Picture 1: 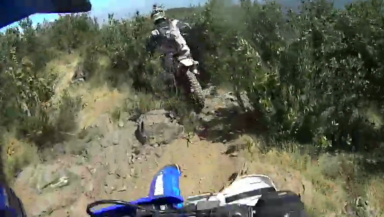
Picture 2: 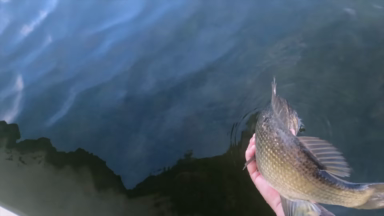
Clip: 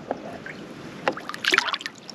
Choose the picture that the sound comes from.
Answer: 2